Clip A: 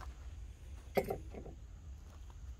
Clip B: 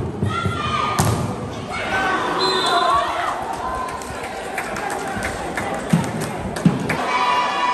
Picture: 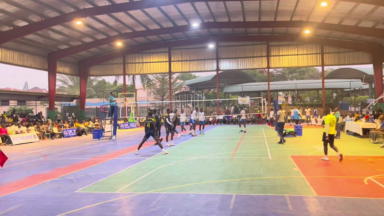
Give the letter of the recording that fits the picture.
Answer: B